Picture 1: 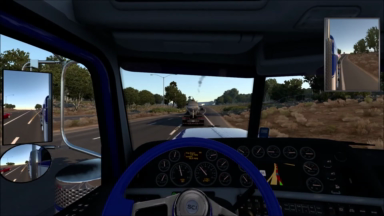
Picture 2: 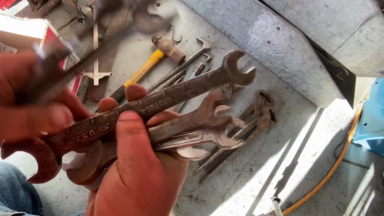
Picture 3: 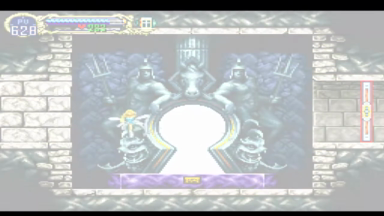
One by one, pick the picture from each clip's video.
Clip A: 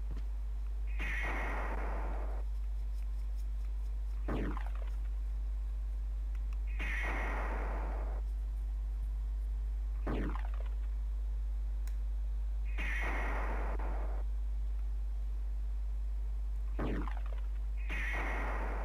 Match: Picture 3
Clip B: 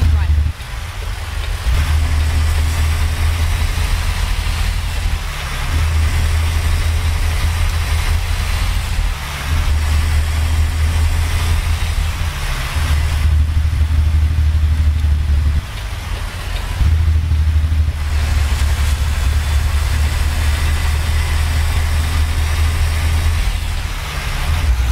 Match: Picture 1